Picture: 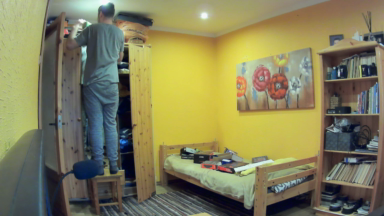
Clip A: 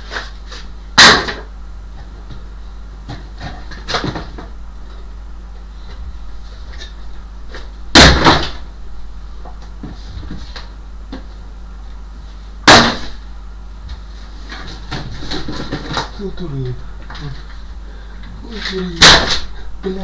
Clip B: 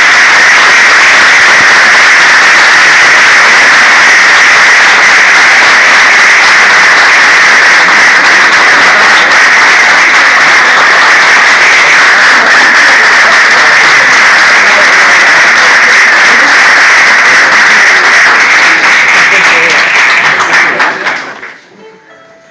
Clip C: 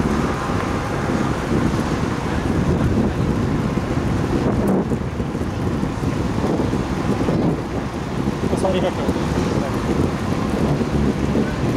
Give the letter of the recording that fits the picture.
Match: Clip A